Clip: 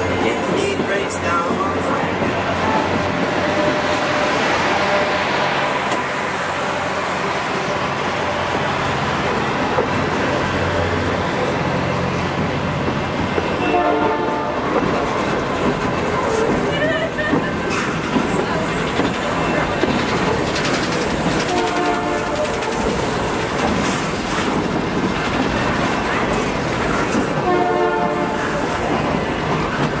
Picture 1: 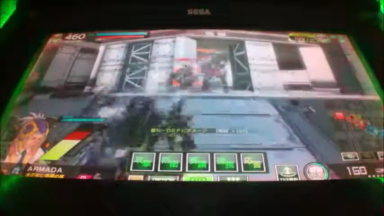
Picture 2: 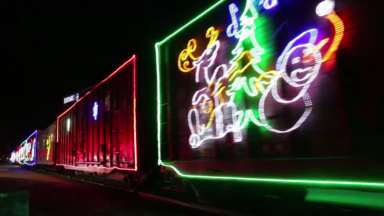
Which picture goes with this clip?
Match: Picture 2